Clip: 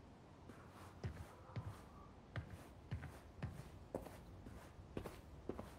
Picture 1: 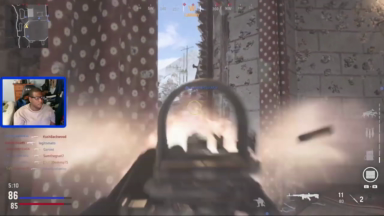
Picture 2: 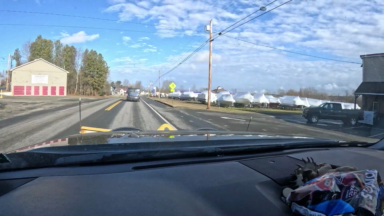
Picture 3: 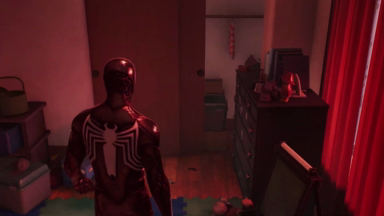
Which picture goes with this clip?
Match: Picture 3